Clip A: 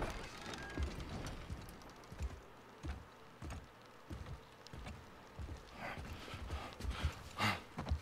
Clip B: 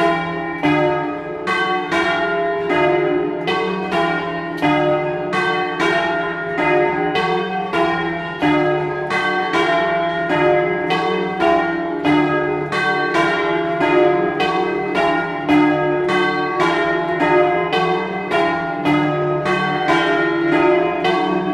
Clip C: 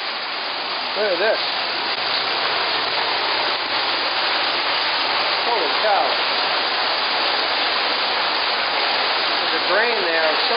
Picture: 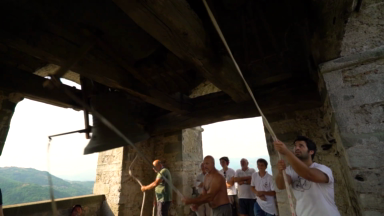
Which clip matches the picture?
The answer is B